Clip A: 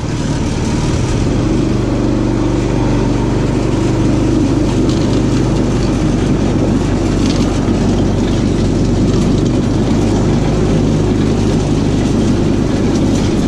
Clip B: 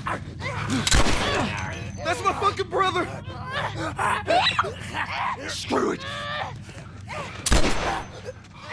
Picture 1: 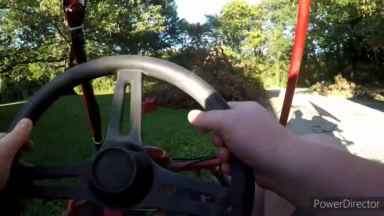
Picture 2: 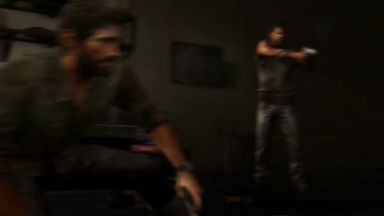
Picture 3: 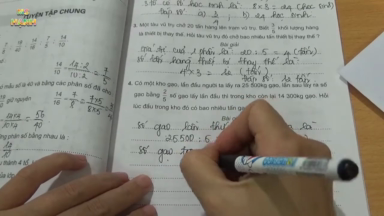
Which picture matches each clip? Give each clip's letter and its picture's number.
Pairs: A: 1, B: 2